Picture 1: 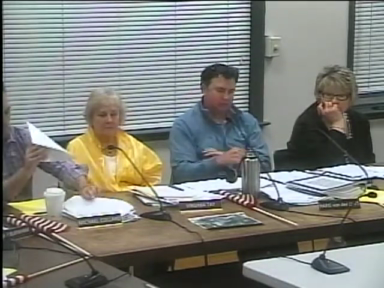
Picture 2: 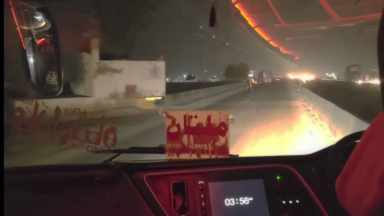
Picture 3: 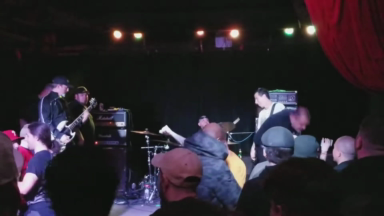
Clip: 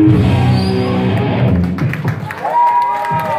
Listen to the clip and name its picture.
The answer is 3